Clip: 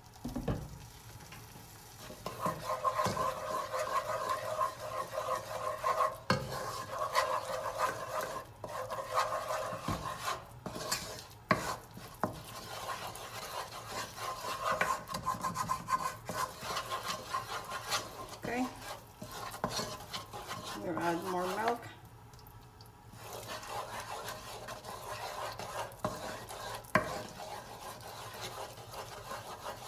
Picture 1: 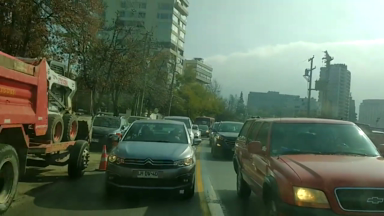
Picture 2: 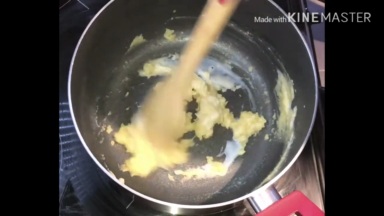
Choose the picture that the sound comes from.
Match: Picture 2